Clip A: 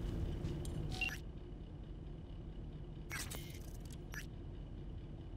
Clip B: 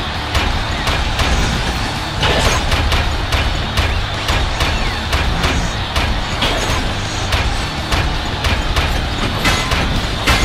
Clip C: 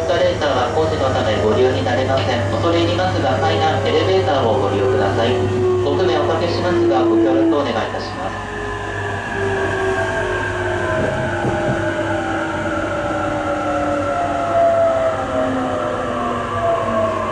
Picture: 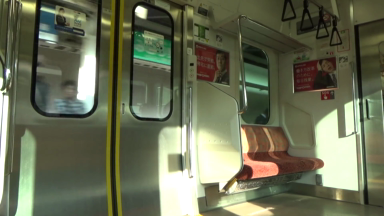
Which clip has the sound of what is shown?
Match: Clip C